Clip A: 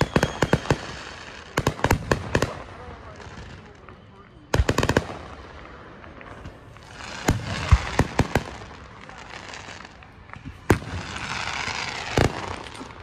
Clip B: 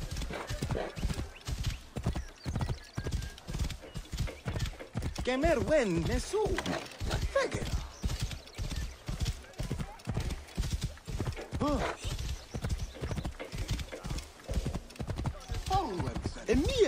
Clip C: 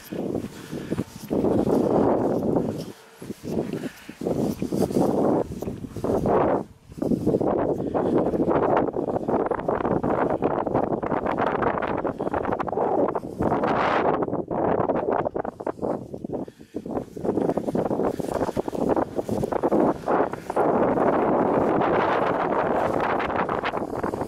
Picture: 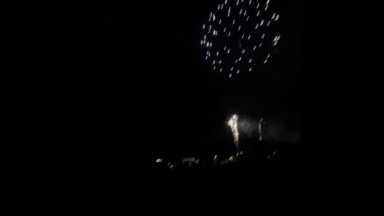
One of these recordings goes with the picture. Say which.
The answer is A